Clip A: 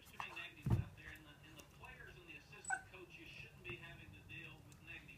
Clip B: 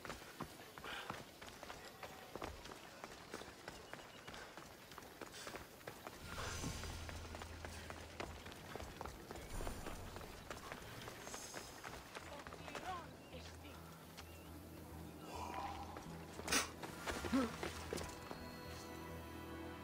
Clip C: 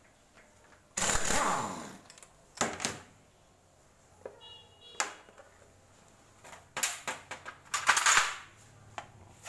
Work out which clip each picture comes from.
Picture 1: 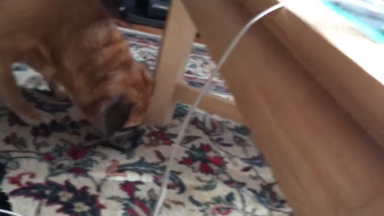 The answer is A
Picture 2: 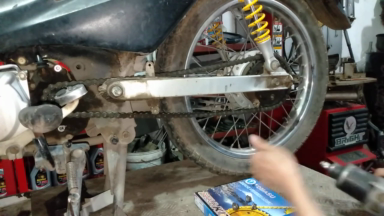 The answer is C